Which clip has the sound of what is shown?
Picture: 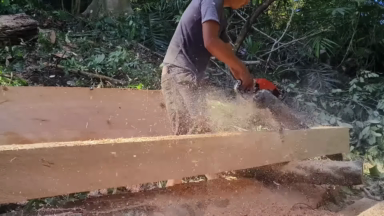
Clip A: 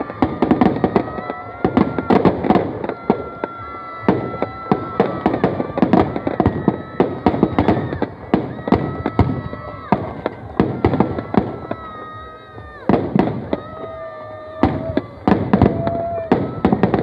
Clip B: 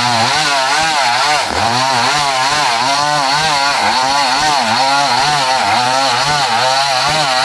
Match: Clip B